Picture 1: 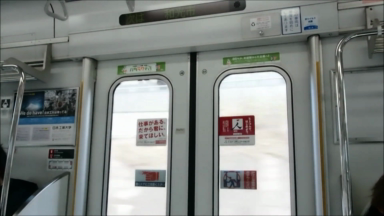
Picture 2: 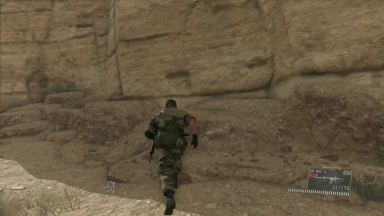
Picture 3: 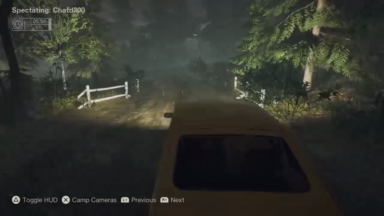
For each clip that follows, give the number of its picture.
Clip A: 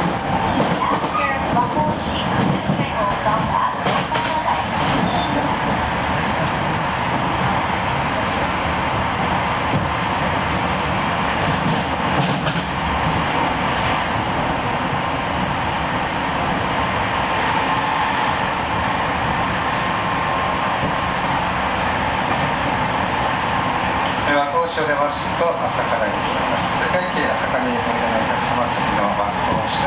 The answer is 1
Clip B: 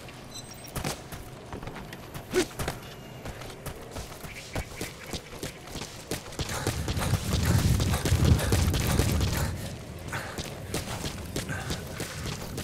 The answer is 2